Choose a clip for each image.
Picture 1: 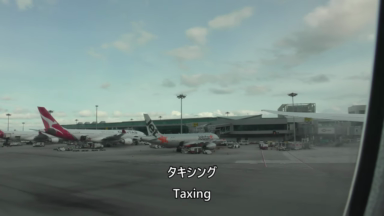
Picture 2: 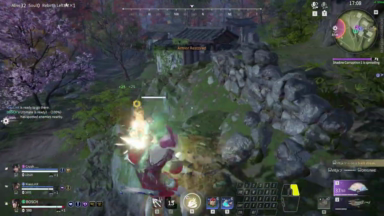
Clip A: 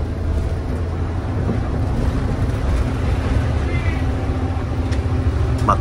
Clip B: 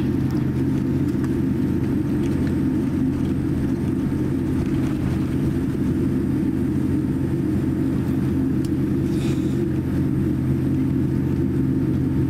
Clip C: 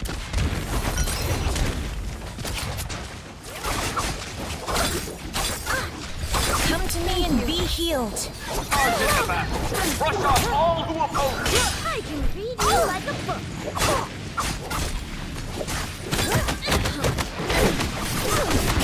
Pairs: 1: B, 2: C